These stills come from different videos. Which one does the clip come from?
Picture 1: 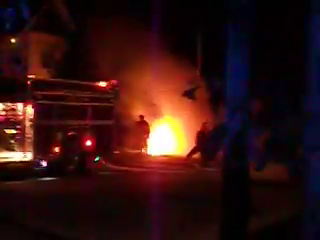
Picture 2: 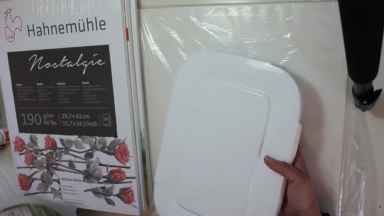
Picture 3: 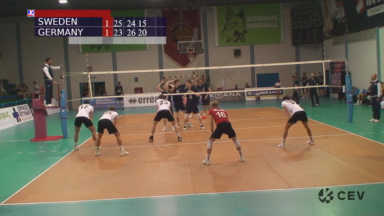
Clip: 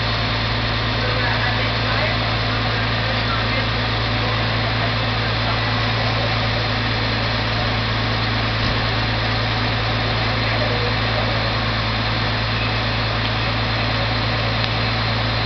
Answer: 1